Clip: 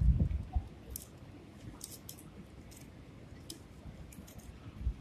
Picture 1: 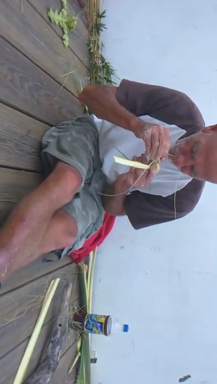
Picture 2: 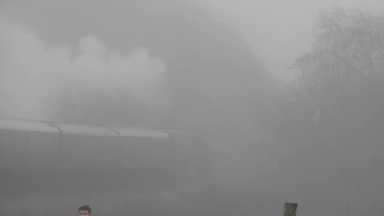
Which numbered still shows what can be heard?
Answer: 1